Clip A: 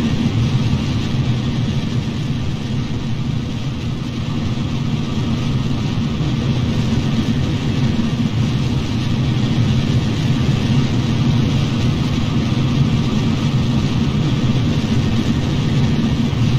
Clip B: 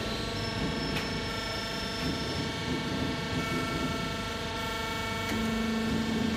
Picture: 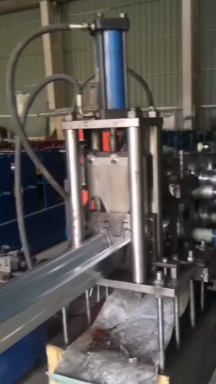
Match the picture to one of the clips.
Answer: B